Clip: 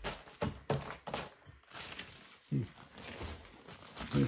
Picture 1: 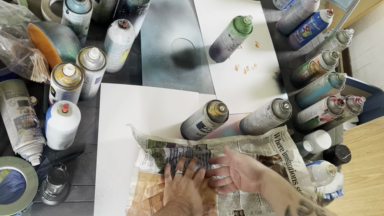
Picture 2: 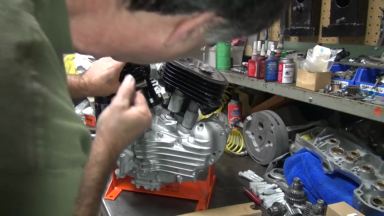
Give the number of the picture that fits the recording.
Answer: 1